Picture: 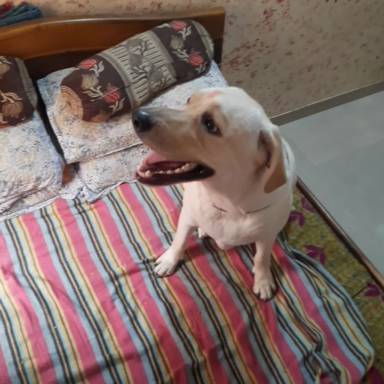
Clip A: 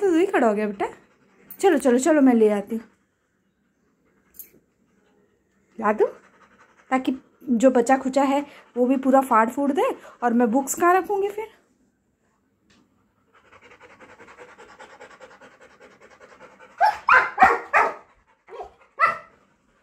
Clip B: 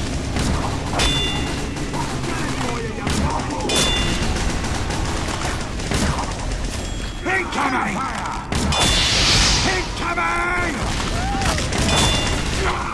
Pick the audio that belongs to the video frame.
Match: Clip A